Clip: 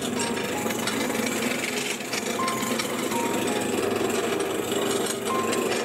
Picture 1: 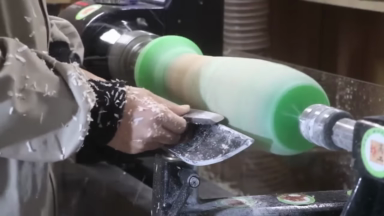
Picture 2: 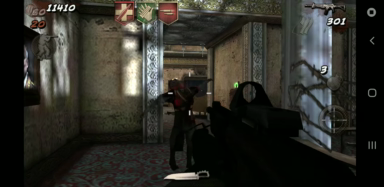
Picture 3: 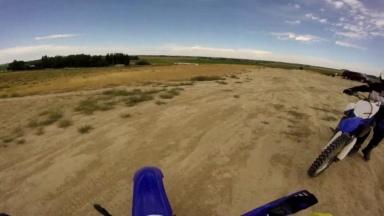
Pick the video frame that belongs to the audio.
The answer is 1